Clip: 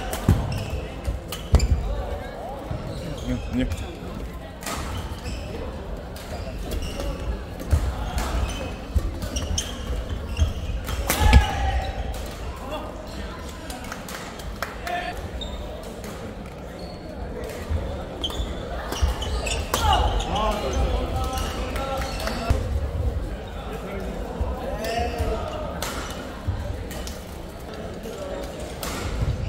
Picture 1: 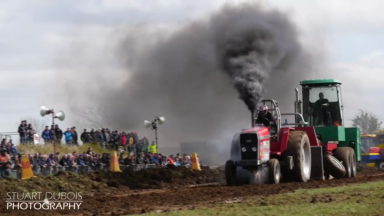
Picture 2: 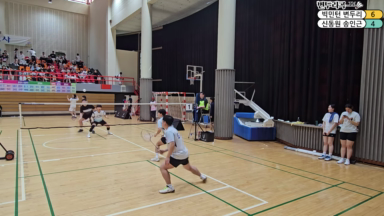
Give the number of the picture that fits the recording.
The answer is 2